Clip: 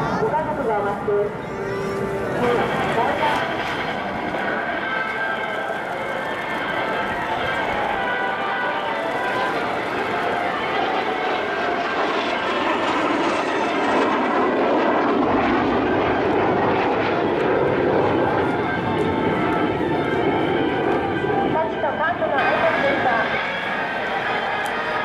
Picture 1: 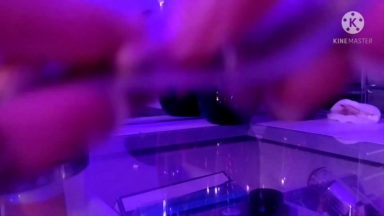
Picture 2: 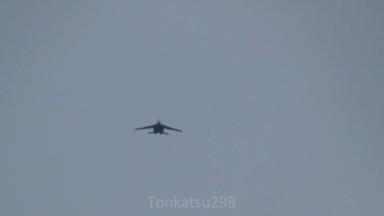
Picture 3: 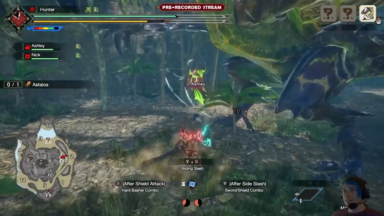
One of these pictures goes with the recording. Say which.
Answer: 2